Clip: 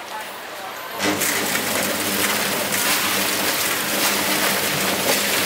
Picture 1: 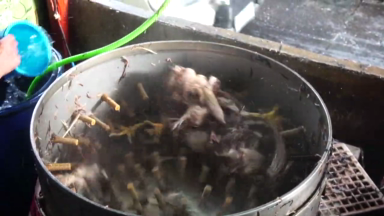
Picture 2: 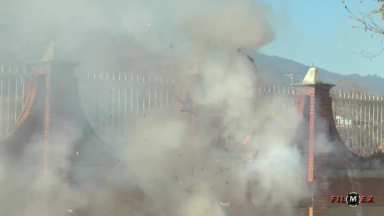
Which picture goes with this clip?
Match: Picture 1